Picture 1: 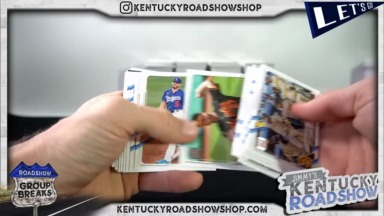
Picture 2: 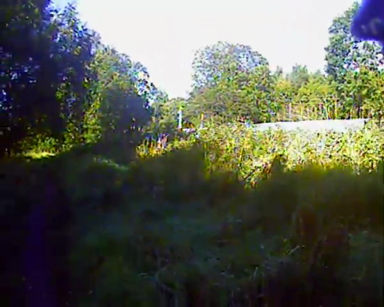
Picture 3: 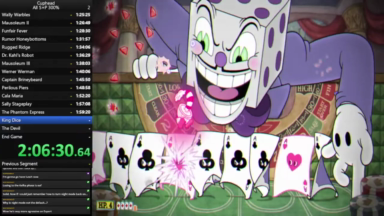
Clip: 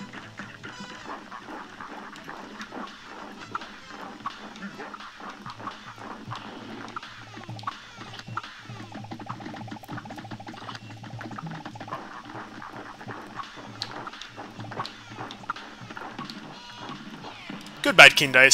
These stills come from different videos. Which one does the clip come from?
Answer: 3